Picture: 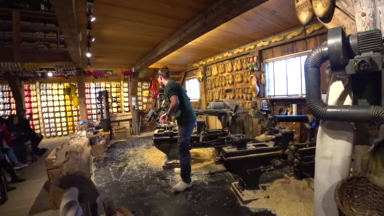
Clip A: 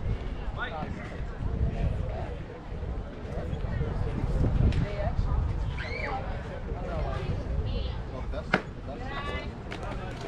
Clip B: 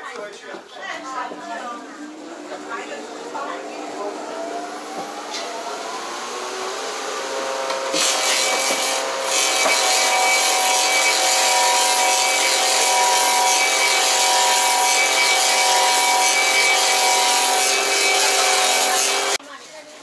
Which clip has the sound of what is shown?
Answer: B